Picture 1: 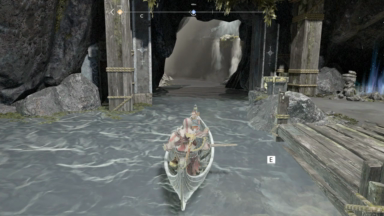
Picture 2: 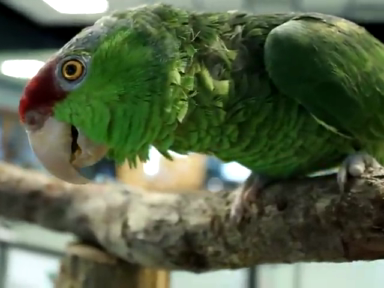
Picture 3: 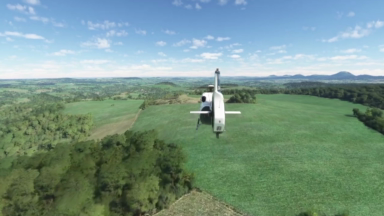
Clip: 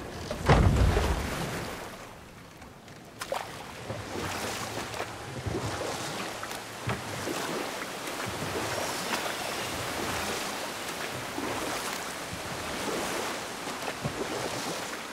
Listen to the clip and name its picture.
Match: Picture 1